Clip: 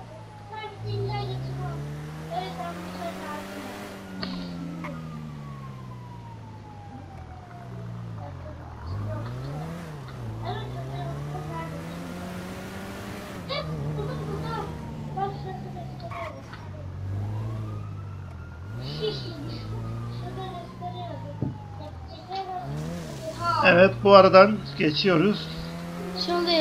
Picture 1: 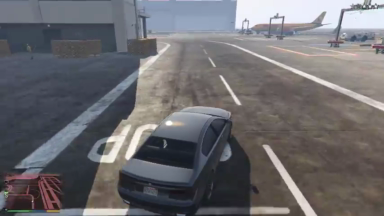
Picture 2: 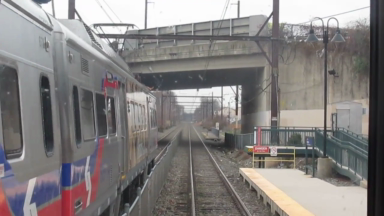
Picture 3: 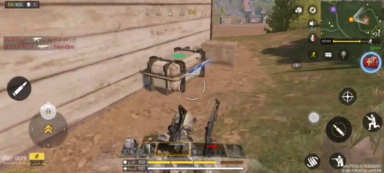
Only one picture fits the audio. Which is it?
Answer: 1